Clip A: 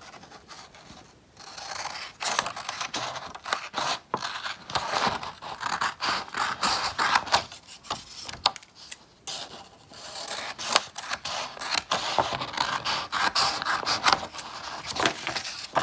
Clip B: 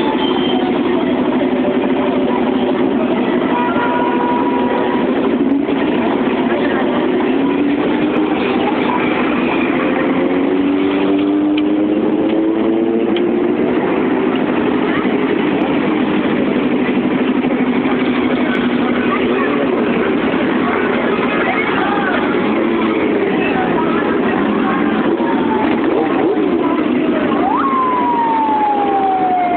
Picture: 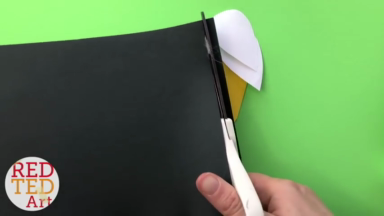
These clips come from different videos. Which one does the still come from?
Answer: A